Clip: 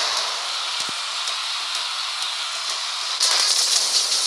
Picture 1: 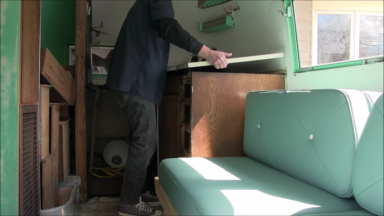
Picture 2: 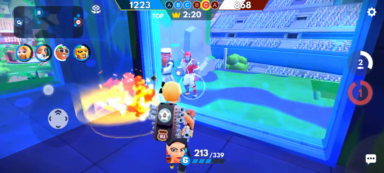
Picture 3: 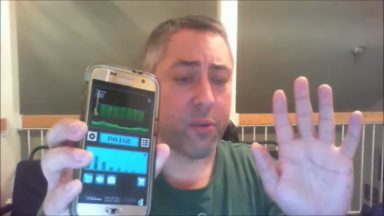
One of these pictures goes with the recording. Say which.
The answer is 2